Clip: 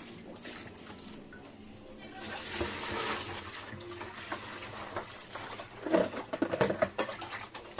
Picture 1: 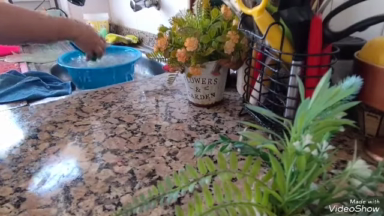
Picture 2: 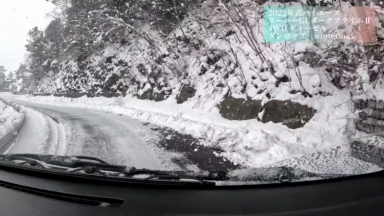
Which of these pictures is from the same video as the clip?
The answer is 1